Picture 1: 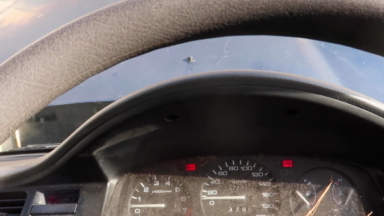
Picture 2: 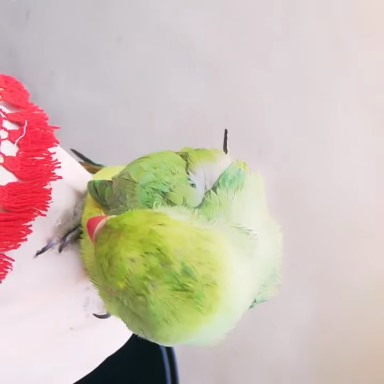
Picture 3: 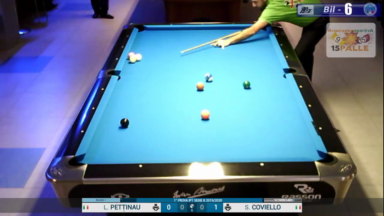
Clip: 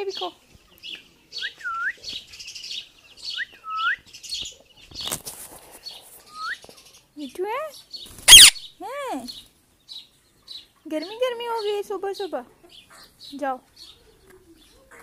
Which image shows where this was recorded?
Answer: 2